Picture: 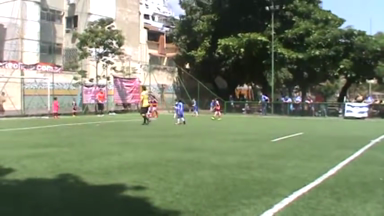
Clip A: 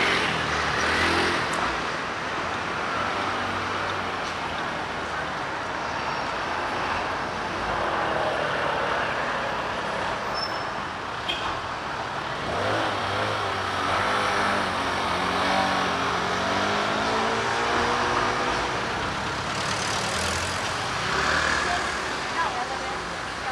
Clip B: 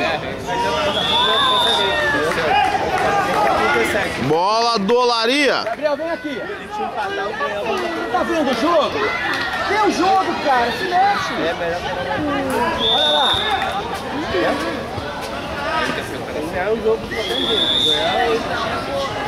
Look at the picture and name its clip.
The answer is B